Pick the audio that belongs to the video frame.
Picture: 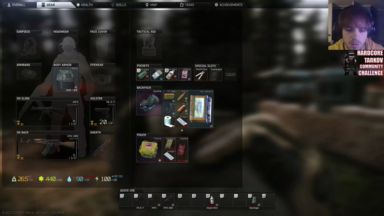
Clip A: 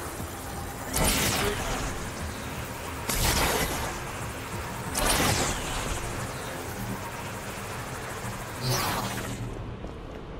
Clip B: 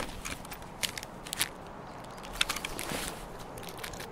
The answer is B